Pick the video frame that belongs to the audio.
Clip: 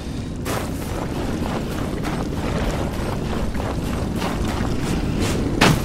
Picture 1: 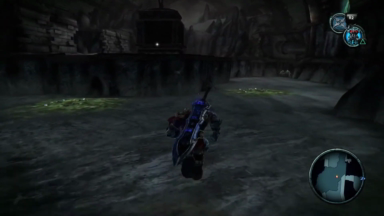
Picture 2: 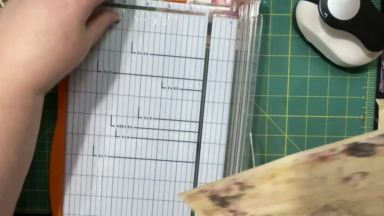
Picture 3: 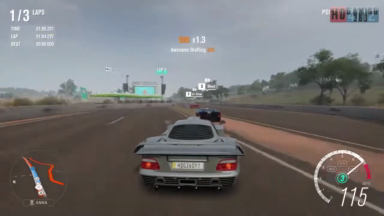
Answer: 1